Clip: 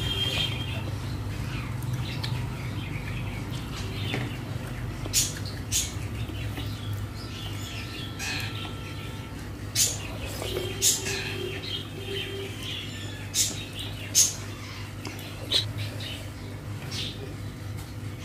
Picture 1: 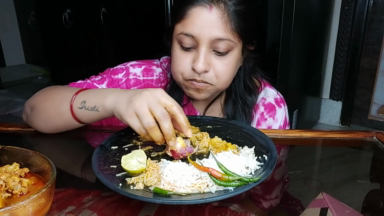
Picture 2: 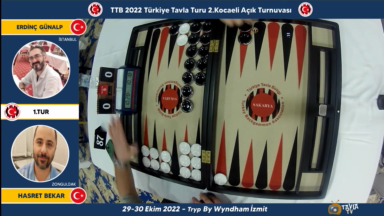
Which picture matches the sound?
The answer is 1